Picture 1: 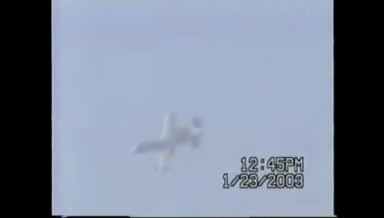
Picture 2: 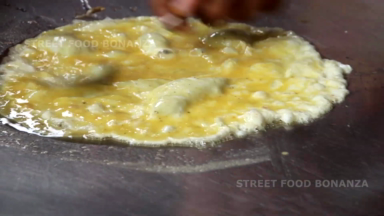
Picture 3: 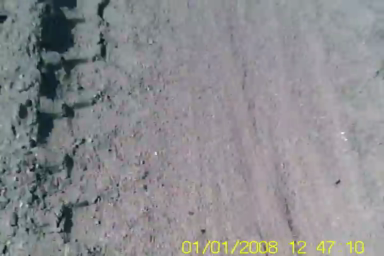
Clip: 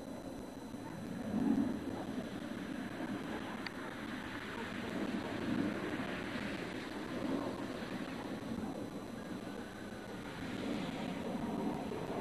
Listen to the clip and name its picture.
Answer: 1